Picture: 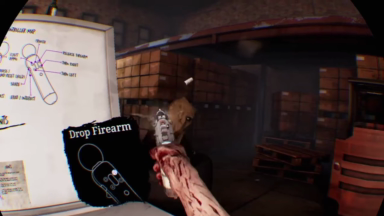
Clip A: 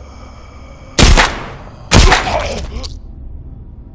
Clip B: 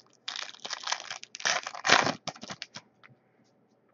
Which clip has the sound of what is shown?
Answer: A